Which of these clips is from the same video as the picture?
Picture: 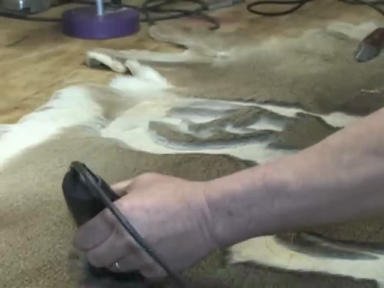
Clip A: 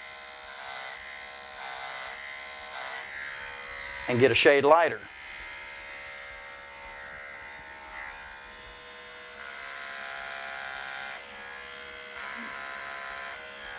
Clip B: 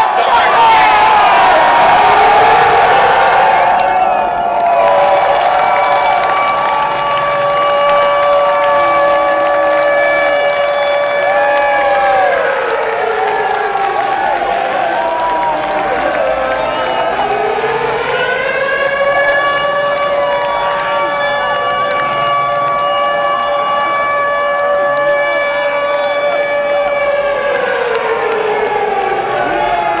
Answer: A